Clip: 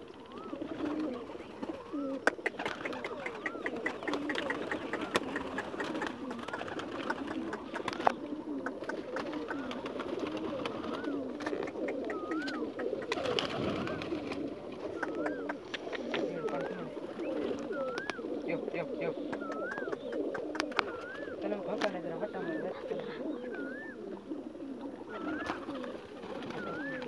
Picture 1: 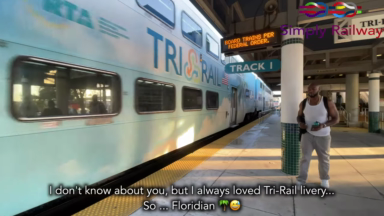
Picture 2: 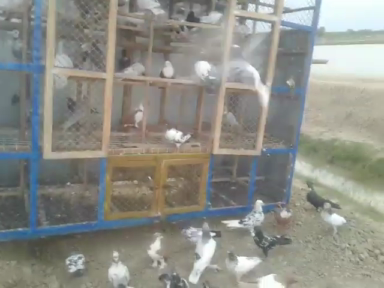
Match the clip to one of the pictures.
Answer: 2